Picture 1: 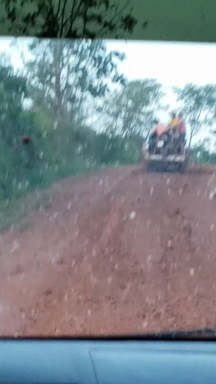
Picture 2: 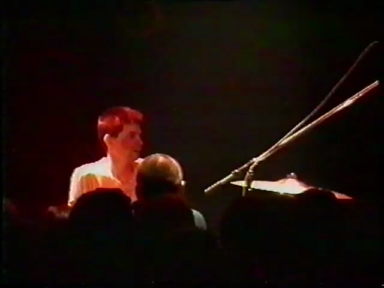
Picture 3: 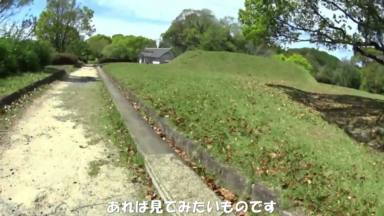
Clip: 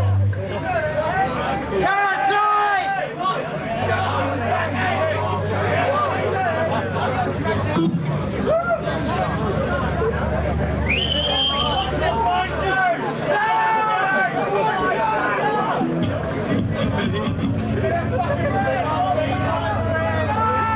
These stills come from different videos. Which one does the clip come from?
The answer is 2